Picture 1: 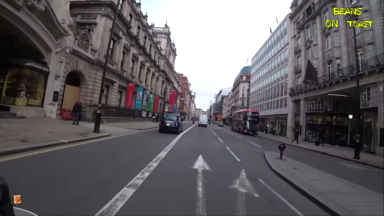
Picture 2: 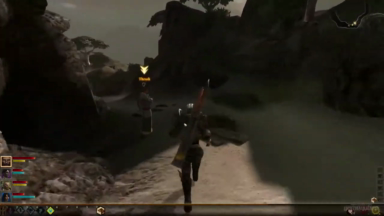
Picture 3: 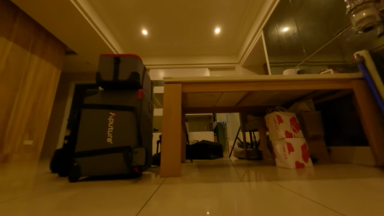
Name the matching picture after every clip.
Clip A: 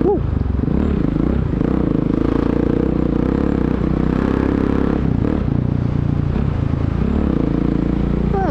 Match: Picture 1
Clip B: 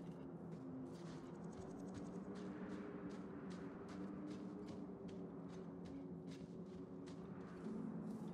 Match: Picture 2